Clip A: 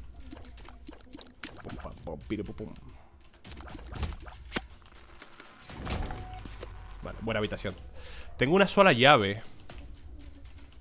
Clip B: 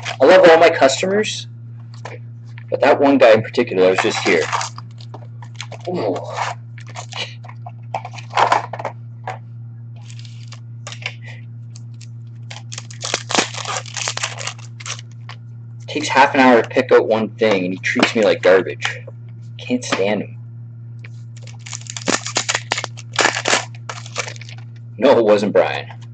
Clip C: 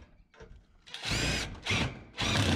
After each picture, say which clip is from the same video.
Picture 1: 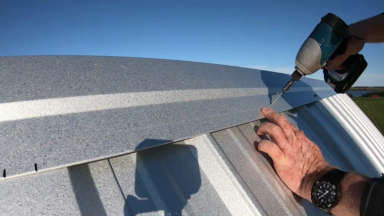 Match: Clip C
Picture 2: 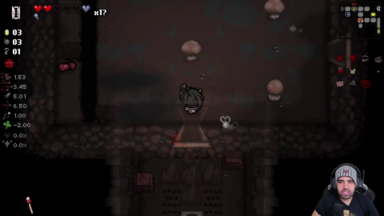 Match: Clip A